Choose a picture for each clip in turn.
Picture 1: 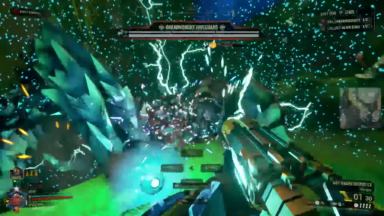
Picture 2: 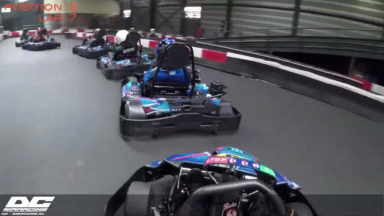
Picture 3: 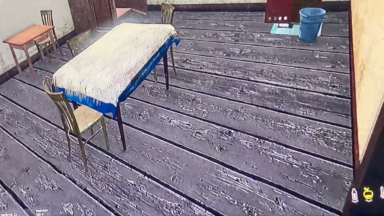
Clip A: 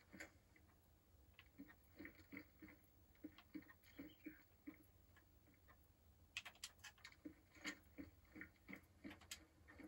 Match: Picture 3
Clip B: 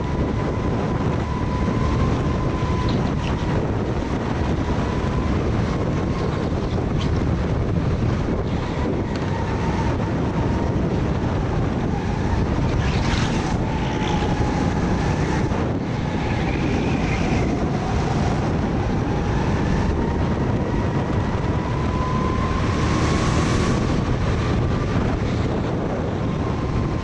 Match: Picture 2